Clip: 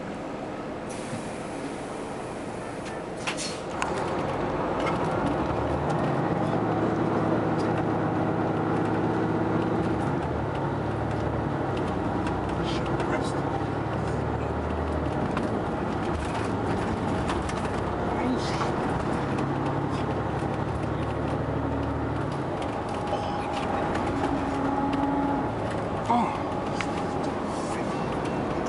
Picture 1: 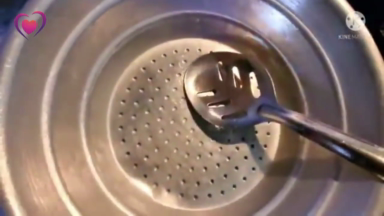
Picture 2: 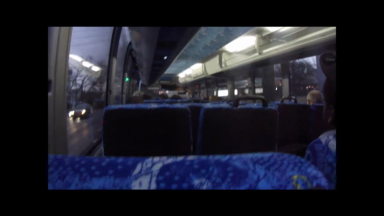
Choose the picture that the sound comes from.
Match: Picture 2